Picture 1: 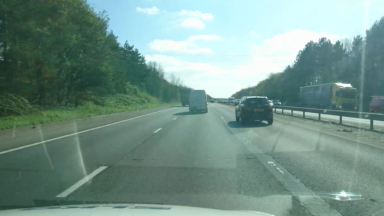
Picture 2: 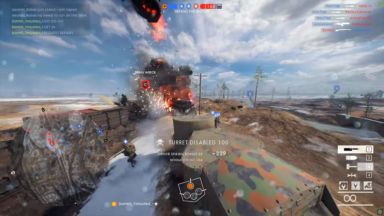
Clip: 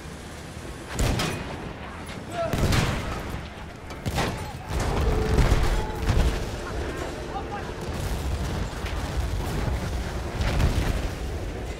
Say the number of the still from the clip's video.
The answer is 2